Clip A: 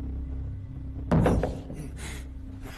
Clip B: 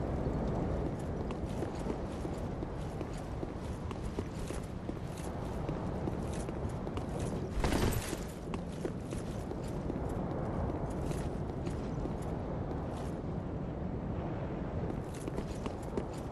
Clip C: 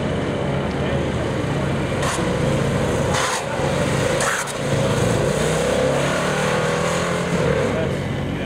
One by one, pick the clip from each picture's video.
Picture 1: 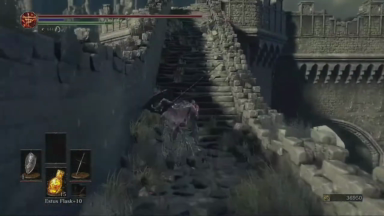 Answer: B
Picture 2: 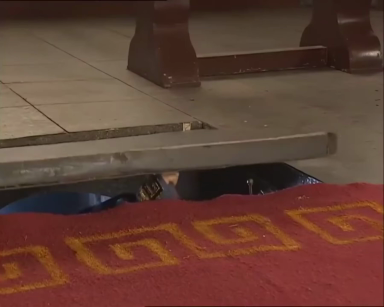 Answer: A